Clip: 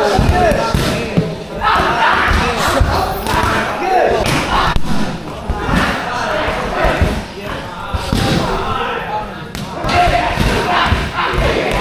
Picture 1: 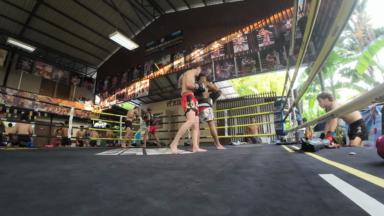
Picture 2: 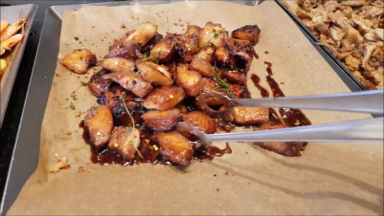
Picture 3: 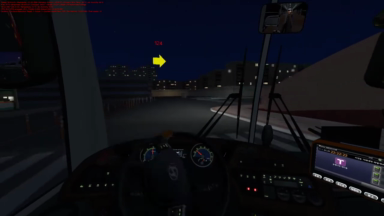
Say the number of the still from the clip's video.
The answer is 1